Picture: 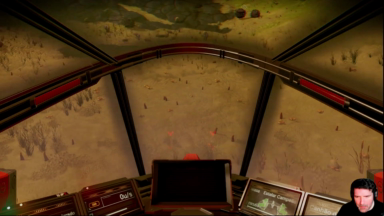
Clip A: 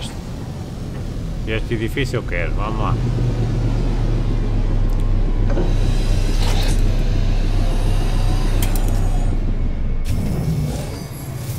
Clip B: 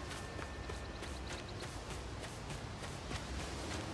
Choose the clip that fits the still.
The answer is A